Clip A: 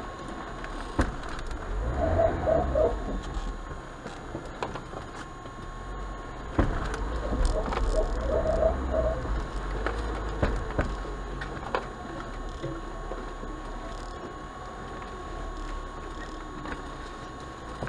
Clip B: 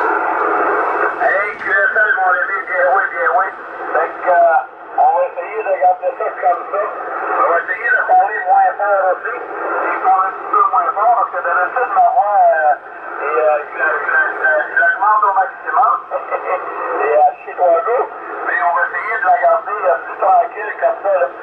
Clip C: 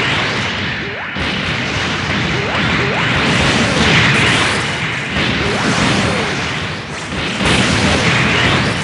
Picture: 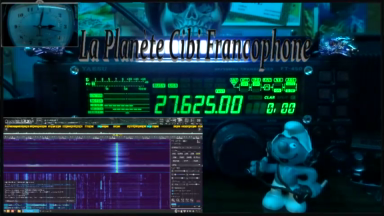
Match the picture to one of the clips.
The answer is B